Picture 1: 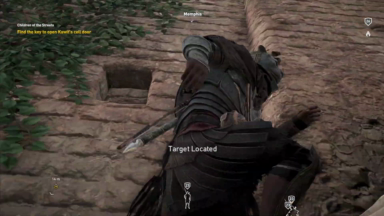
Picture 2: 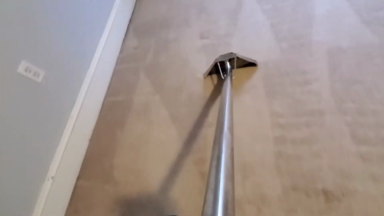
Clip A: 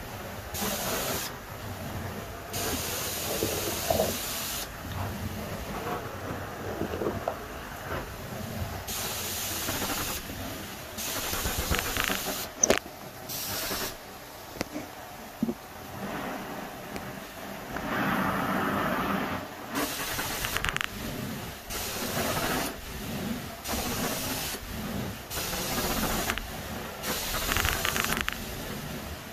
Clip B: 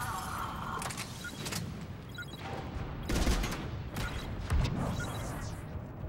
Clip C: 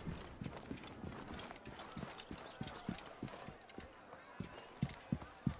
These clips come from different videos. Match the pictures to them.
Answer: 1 C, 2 A